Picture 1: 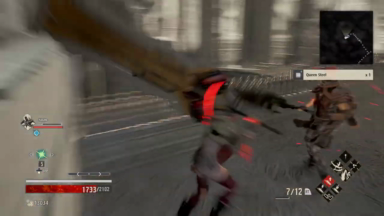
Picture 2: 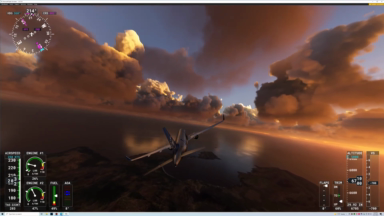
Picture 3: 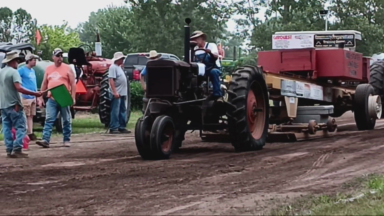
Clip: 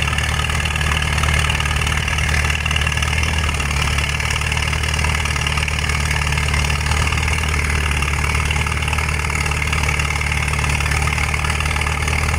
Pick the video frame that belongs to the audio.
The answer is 3